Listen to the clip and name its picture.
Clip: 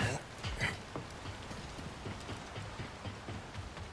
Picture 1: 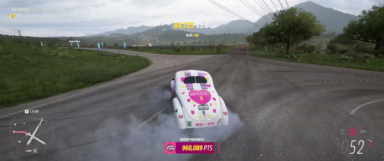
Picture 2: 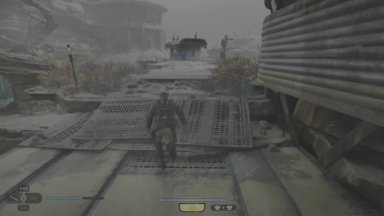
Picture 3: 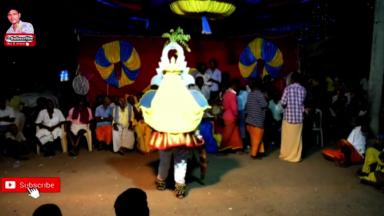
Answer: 2